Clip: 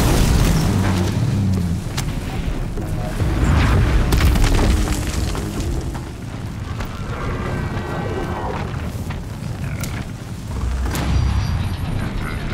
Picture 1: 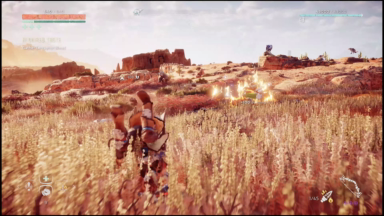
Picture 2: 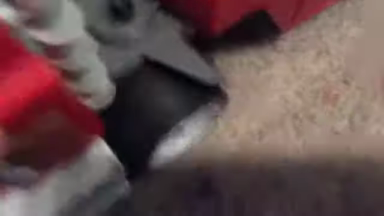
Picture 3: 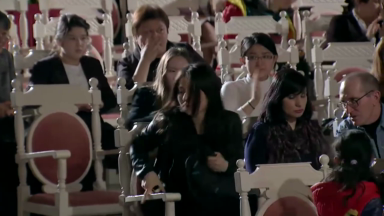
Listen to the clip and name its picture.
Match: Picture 1